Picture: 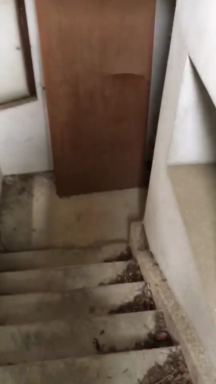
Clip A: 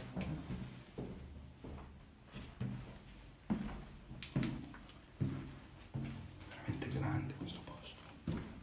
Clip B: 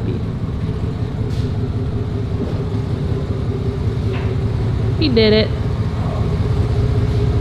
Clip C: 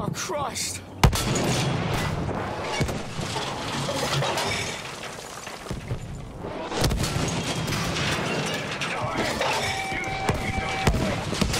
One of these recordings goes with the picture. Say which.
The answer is A